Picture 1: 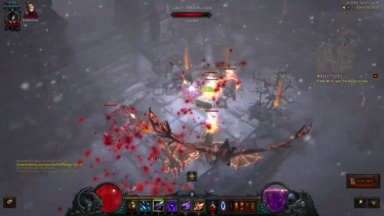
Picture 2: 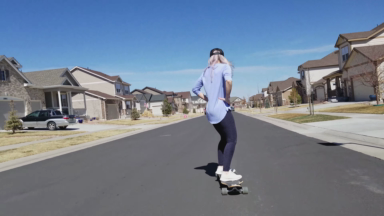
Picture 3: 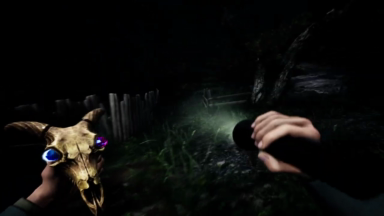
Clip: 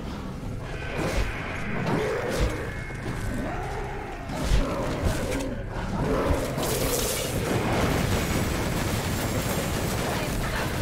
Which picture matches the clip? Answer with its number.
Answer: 1